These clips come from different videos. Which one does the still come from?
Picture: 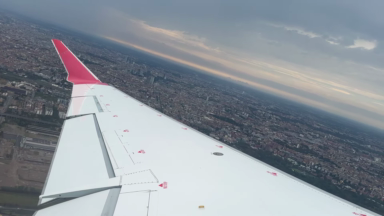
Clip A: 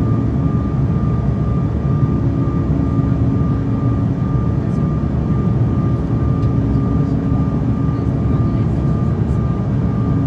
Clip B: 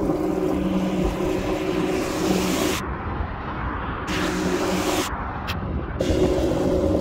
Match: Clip A